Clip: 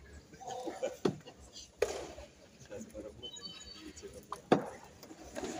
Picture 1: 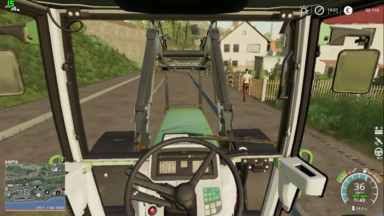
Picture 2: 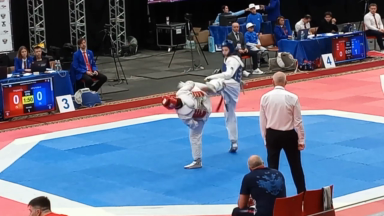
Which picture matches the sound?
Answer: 2